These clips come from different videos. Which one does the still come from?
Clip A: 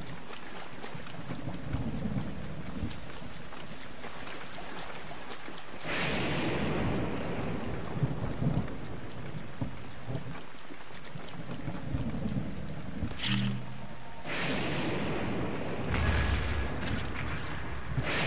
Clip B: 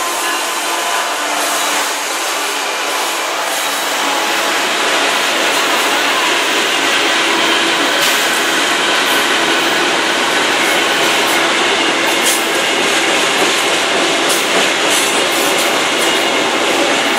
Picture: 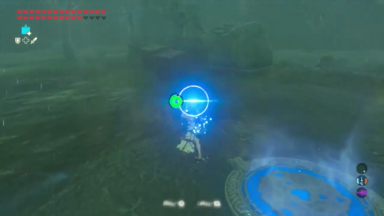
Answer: A